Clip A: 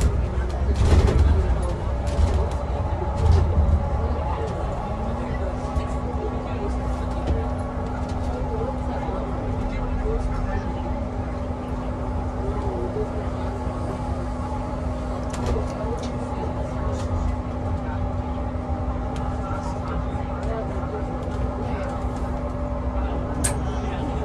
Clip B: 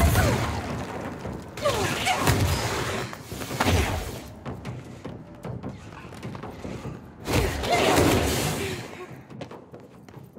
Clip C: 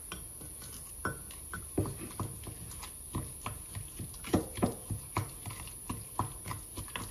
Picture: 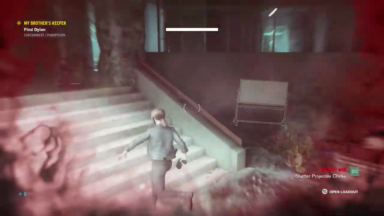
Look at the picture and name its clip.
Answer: B